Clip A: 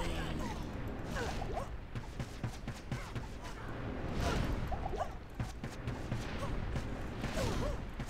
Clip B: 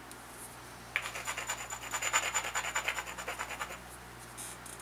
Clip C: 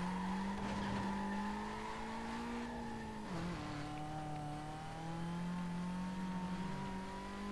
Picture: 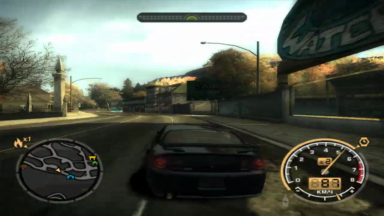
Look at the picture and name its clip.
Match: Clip C